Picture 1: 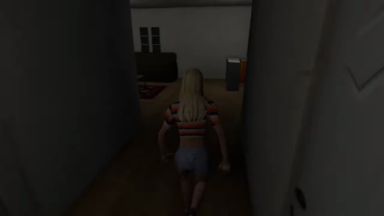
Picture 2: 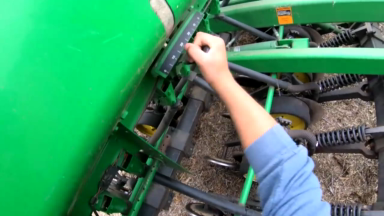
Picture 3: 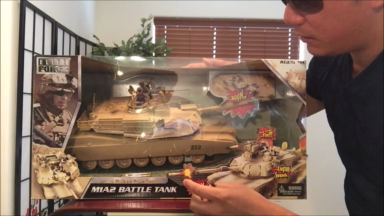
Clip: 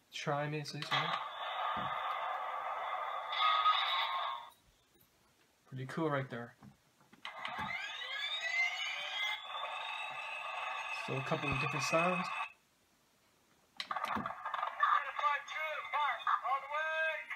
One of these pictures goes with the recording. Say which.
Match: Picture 3